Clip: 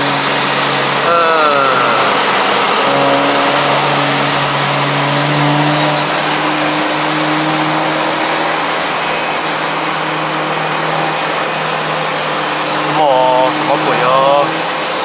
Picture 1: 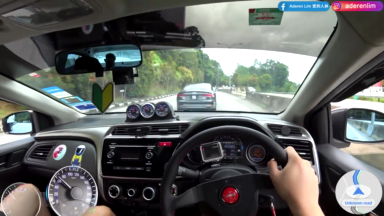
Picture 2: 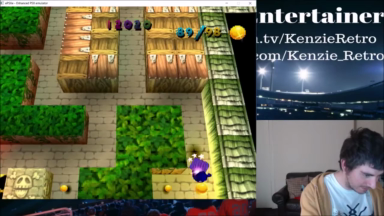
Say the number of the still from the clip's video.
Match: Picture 1